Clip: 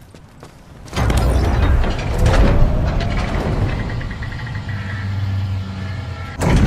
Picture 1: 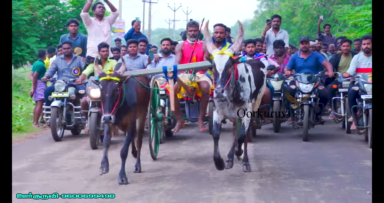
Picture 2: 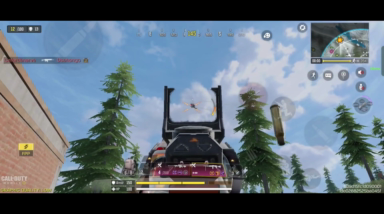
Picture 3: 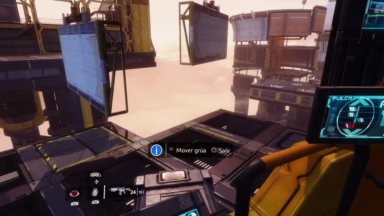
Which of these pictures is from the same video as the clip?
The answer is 3